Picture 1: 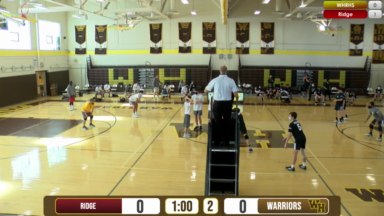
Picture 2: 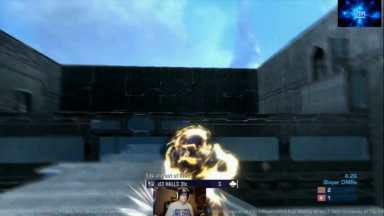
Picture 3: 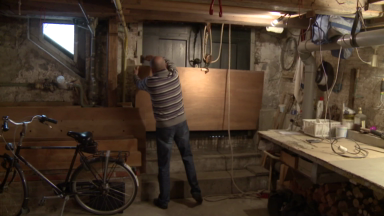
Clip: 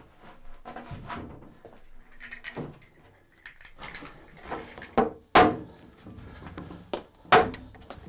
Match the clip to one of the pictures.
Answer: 3